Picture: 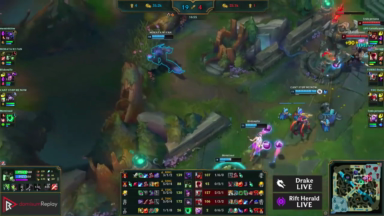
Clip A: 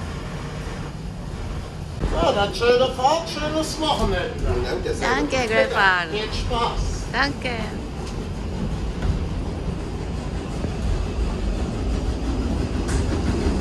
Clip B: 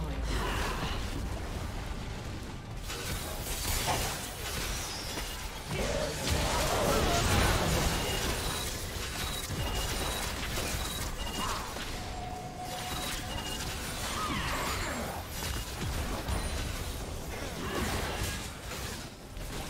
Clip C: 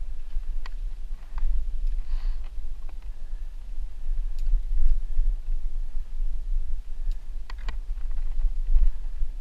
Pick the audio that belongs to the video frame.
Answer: B